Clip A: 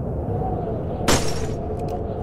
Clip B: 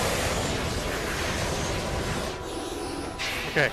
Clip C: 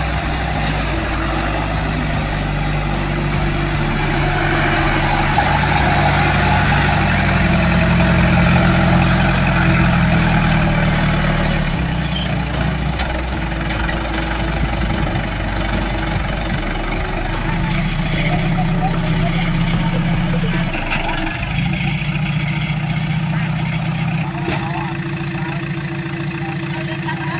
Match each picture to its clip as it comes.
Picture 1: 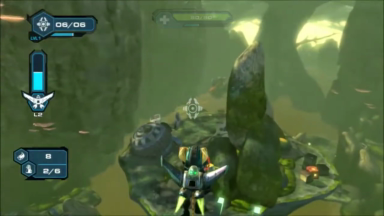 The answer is B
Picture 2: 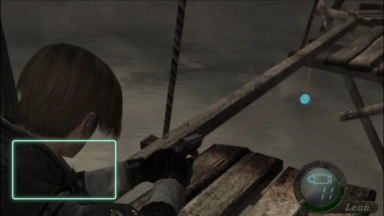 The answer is A